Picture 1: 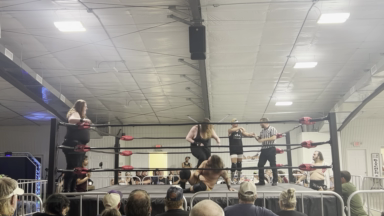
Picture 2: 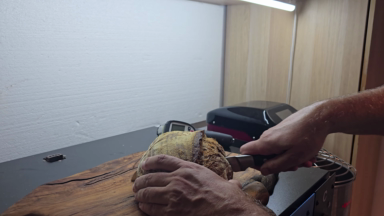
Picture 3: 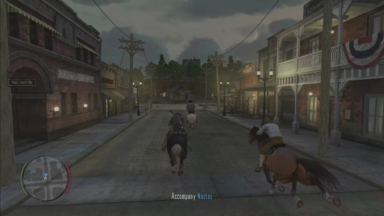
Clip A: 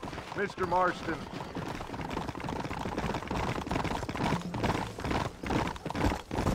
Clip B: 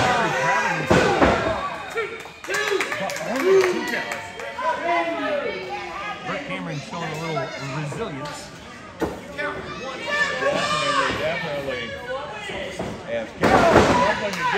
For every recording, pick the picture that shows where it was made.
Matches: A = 3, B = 1